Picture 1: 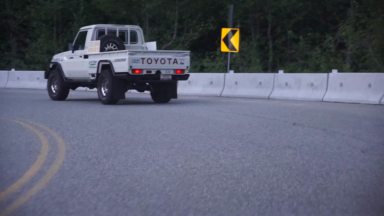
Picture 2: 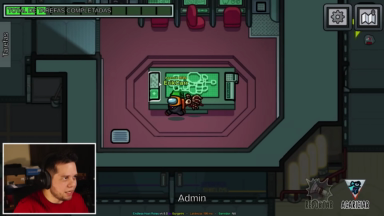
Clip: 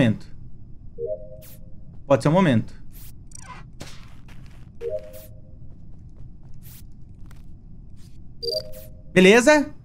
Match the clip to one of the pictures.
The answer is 2